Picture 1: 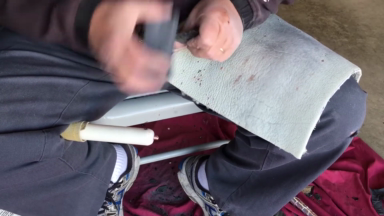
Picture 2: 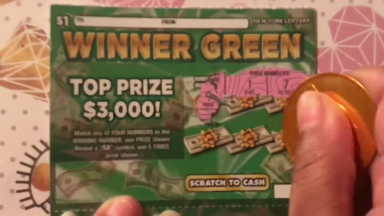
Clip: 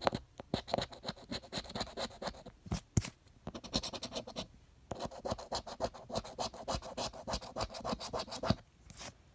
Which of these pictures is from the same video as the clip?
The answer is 2